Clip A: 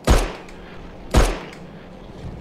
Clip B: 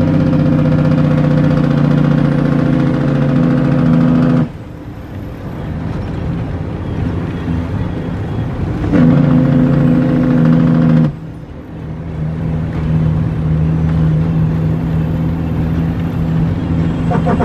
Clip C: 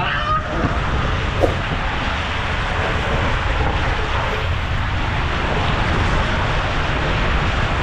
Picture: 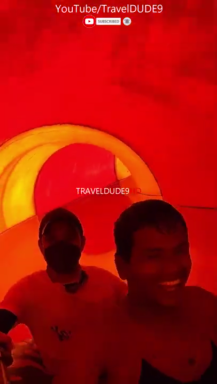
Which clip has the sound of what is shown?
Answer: C